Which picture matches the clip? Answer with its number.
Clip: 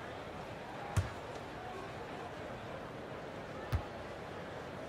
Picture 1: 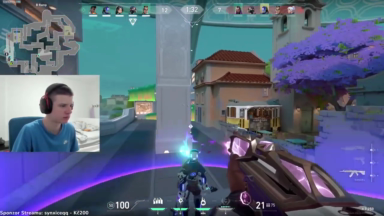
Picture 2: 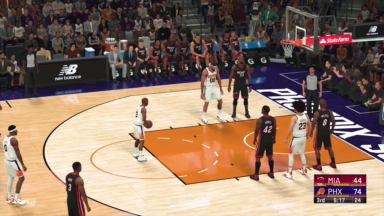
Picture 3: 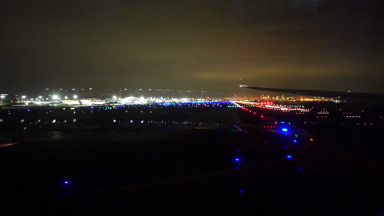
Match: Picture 2